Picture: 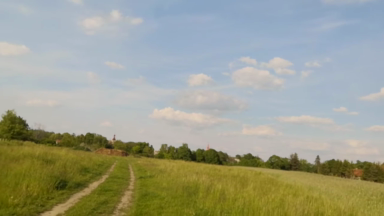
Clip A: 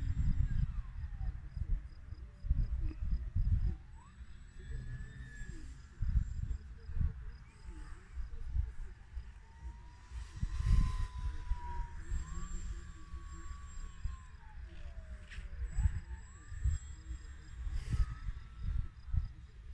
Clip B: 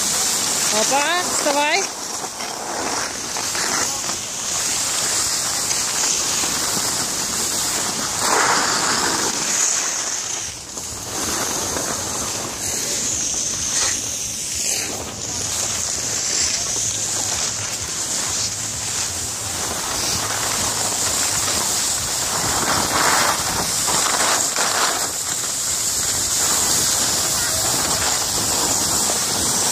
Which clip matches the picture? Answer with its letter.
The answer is A